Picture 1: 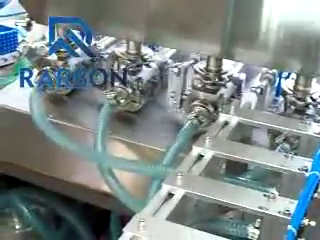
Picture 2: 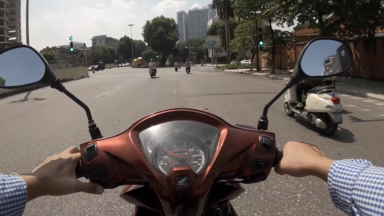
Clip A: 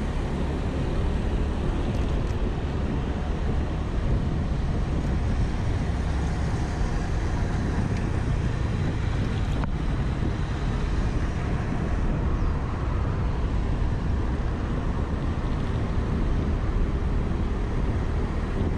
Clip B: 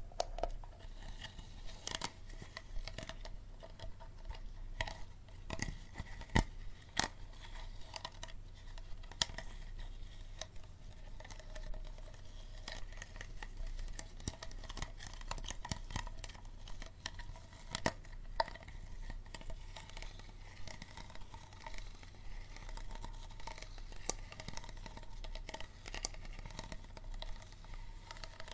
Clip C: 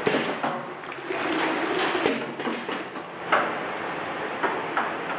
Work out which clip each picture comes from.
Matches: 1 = C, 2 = A